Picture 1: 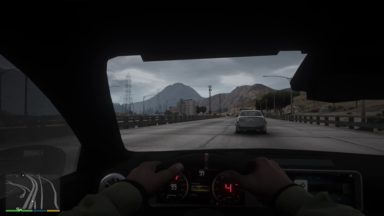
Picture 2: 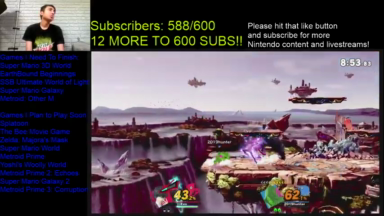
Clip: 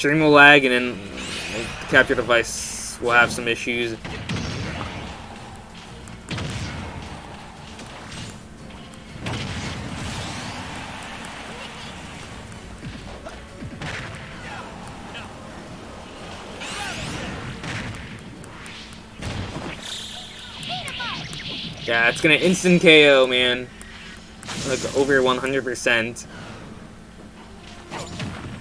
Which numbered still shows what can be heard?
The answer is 2